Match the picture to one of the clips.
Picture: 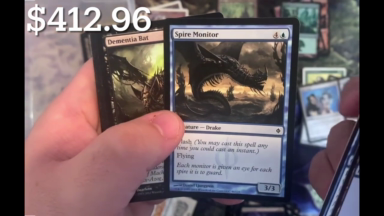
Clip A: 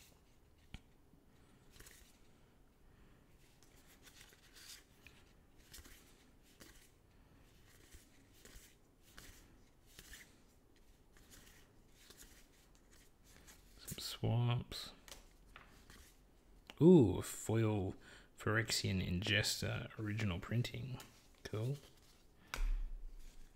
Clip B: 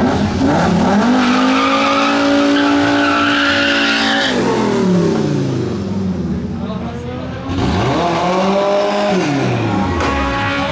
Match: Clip A